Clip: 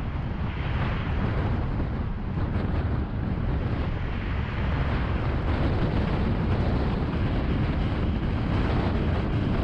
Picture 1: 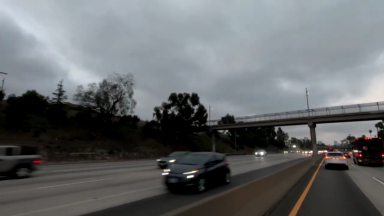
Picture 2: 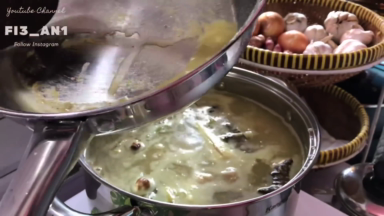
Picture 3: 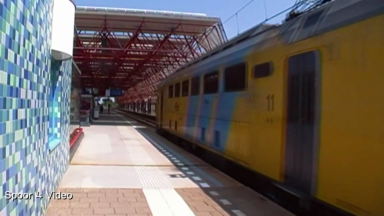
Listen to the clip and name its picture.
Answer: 1